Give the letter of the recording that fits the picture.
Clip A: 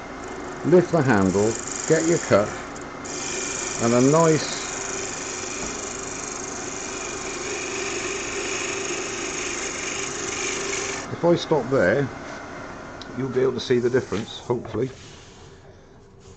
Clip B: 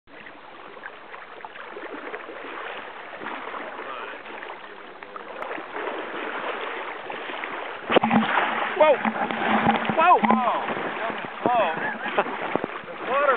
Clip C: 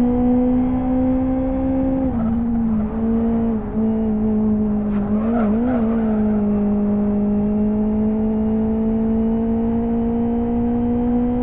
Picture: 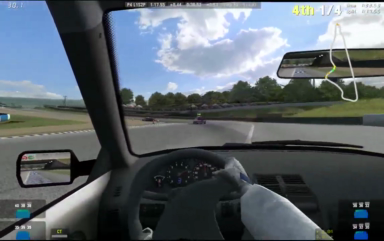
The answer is C